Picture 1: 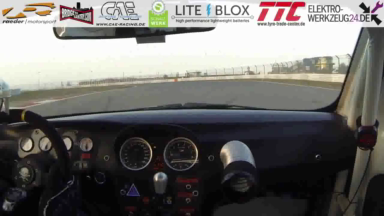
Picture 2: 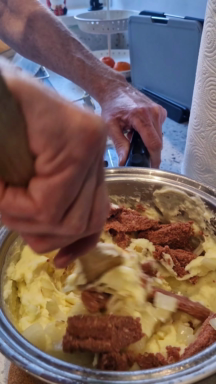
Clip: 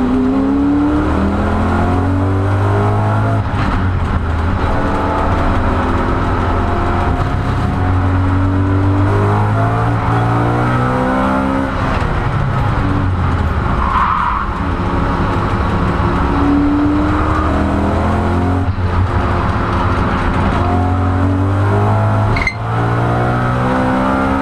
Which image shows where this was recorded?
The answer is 1